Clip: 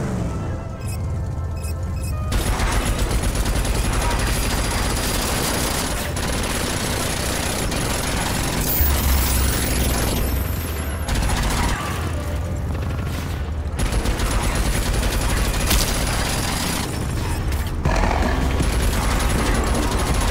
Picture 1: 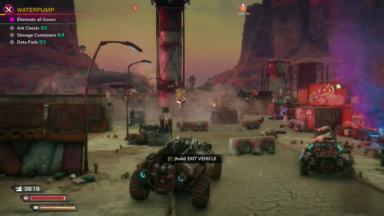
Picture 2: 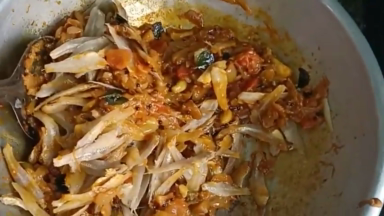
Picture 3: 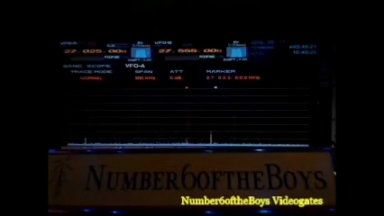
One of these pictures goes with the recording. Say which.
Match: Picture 1